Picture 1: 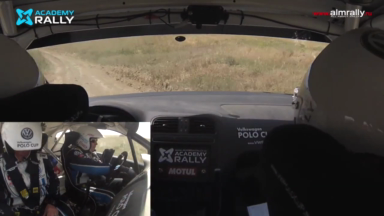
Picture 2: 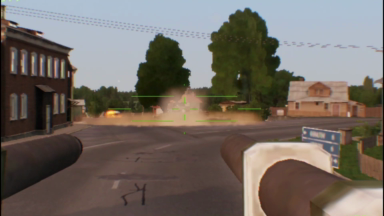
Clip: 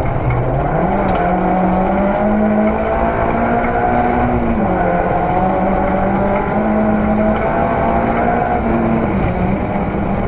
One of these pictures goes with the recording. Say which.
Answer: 1